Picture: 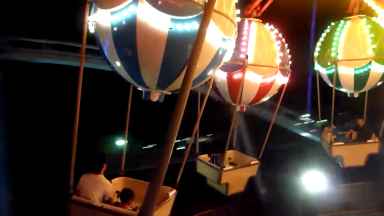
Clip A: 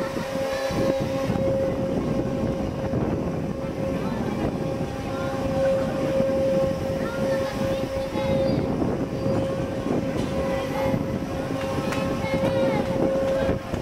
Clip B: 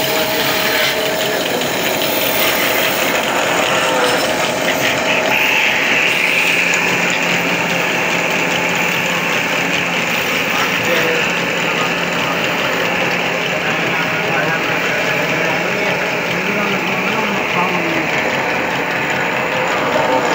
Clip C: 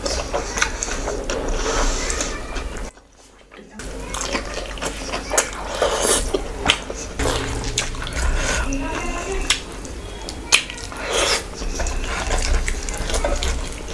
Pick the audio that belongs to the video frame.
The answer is A